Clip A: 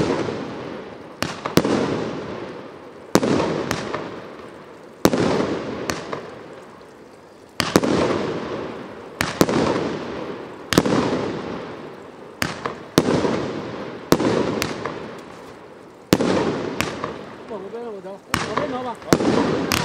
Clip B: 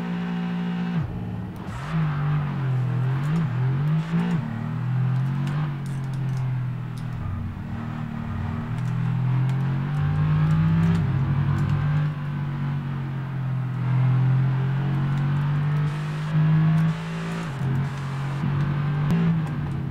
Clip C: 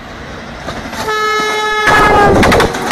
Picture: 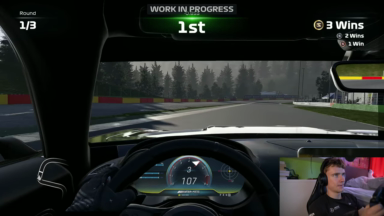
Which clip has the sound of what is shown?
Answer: B